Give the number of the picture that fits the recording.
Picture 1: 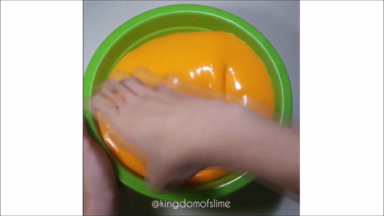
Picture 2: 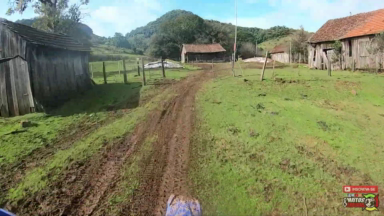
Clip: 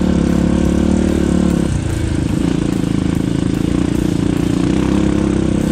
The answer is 2